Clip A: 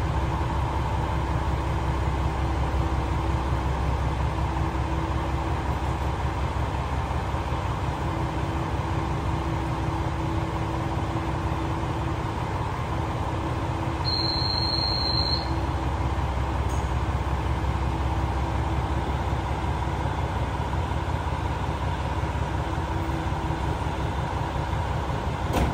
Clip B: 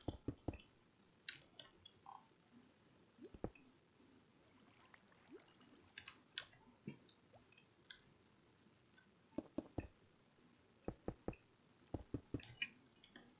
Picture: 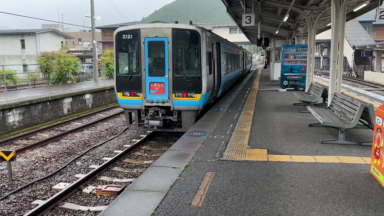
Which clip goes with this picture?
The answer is A